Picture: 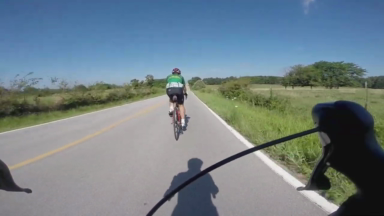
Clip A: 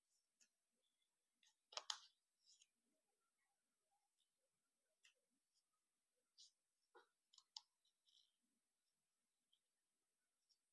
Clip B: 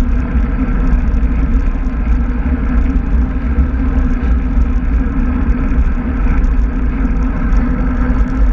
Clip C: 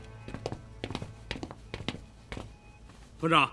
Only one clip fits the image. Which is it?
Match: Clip B